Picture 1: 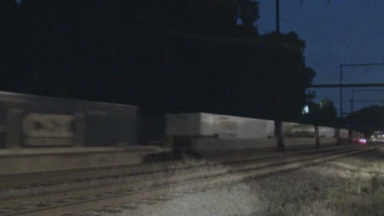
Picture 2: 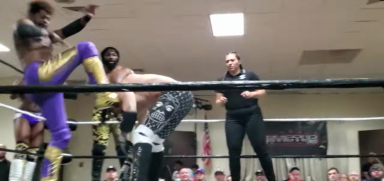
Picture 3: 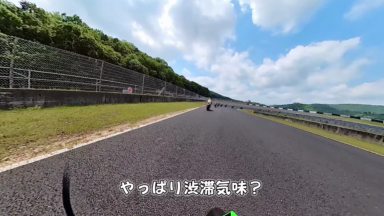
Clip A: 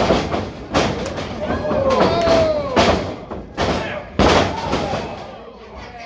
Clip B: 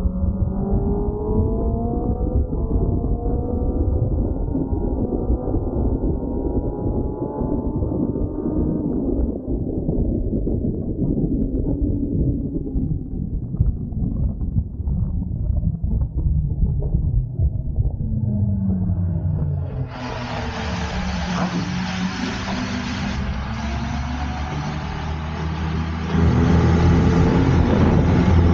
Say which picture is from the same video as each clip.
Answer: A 2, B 3